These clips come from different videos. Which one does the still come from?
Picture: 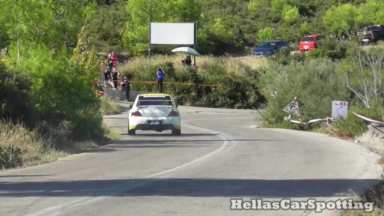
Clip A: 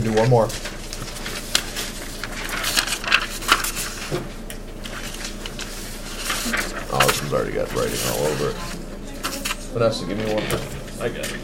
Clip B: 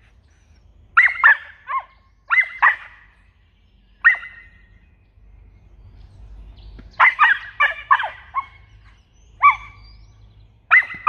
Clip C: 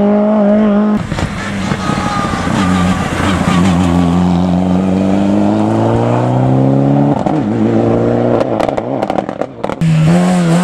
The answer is C